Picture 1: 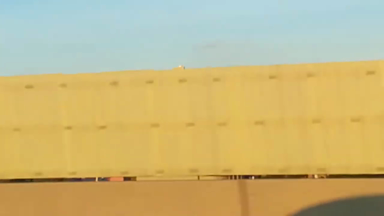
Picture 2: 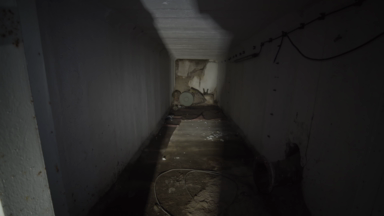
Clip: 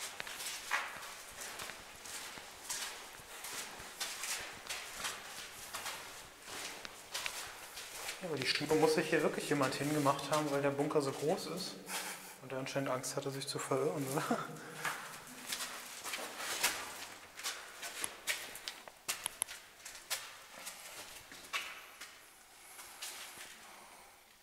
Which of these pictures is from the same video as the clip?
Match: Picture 2